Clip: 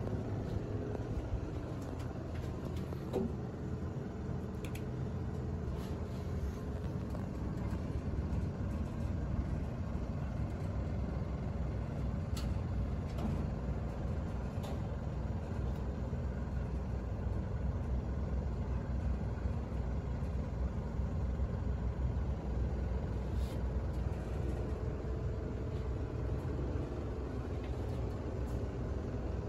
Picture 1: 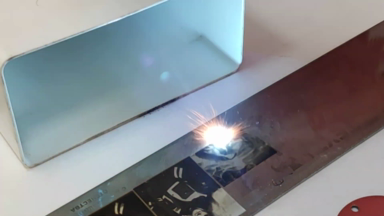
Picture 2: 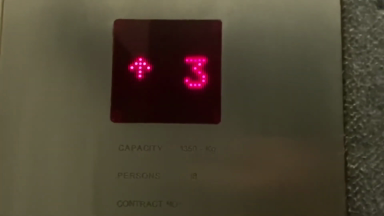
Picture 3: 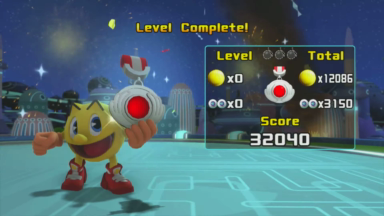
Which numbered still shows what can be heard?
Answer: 2